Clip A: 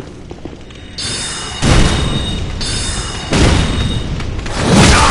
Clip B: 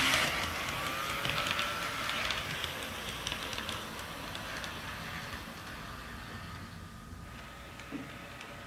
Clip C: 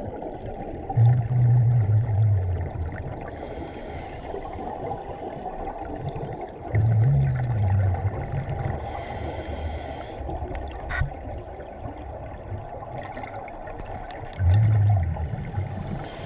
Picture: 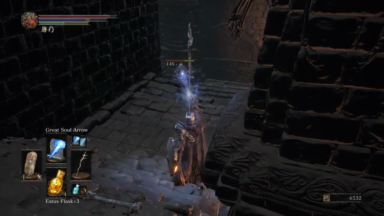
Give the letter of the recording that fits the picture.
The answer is A